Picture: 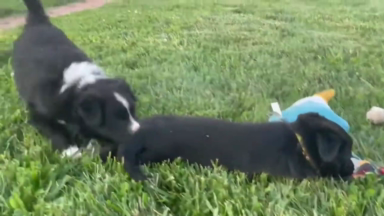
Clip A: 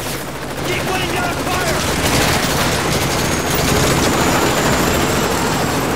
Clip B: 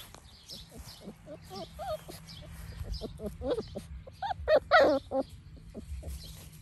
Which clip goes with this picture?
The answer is B